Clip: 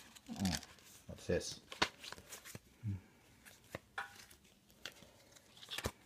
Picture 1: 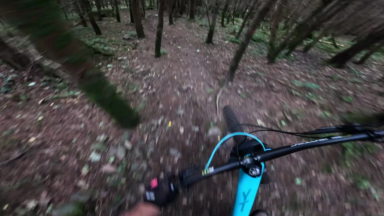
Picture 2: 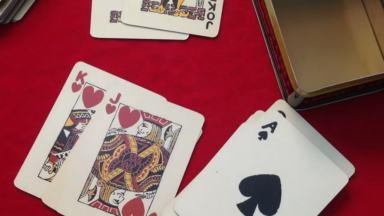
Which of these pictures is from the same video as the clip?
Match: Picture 2